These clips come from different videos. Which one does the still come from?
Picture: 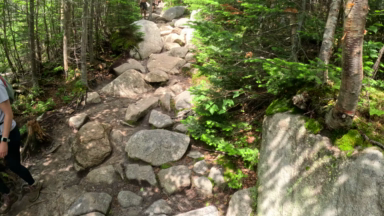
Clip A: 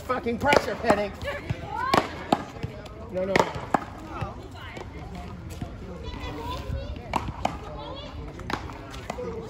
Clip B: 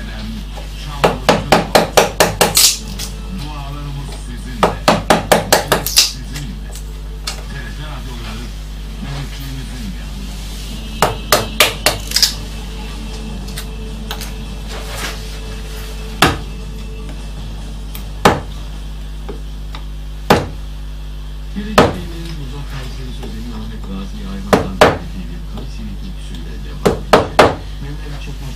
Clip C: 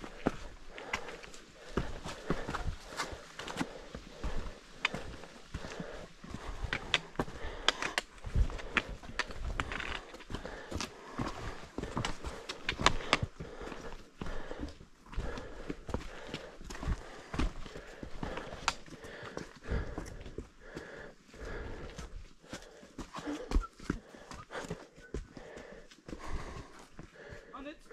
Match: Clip C